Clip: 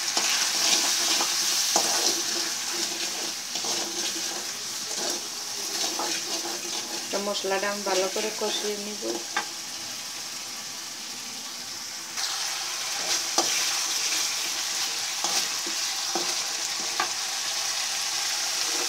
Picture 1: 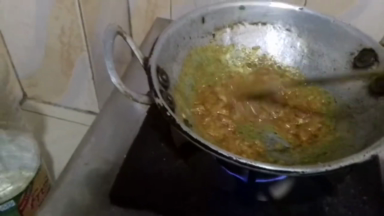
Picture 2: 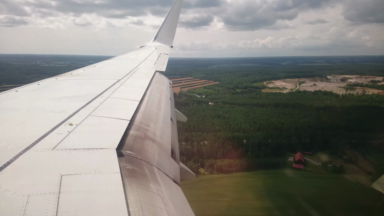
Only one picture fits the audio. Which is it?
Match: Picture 1